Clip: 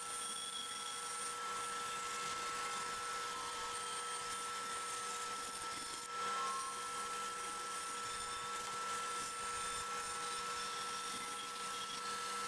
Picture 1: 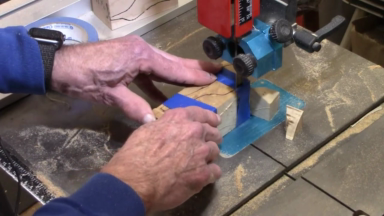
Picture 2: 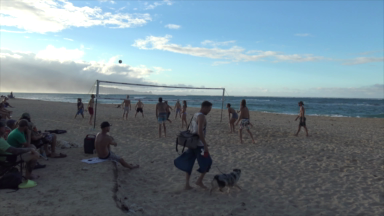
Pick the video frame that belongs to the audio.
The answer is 1